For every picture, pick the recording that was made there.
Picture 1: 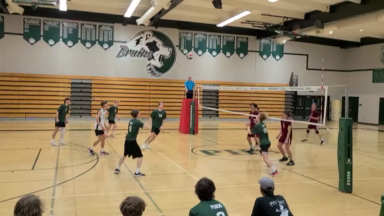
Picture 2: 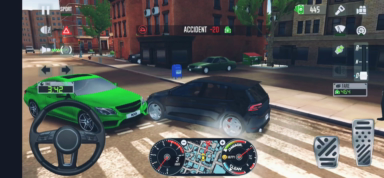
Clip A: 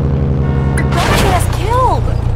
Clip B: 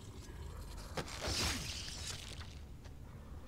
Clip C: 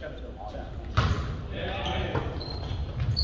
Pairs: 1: C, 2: A